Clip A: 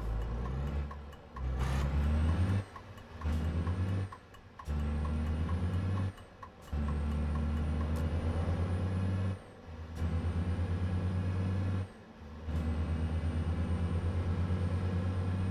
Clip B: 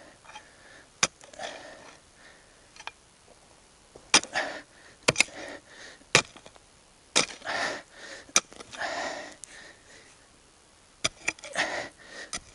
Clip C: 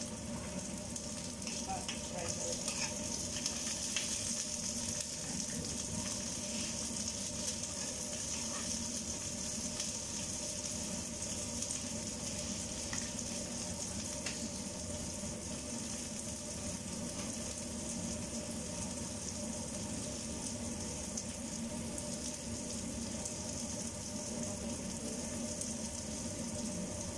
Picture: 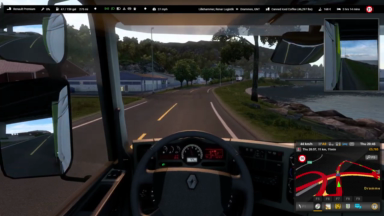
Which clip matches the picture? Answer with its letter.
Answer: A